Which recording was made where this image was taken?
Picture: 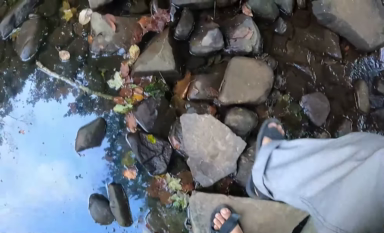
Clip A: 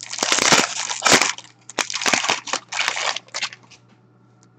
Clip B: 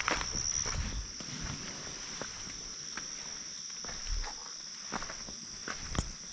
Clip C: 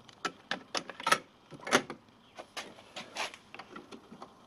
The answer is B